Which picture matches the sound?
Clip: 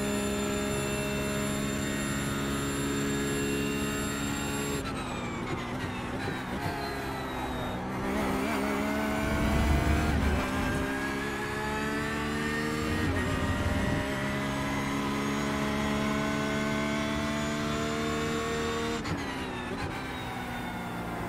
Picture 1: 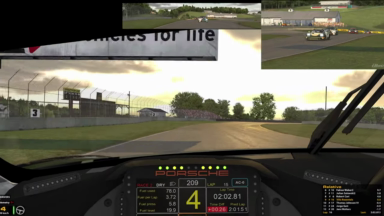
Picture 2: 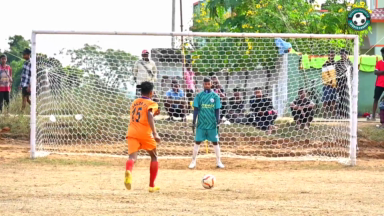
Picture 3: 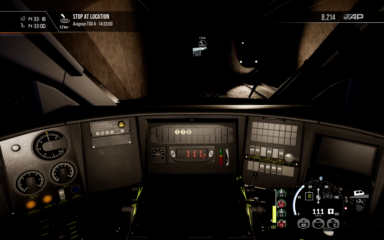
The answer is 1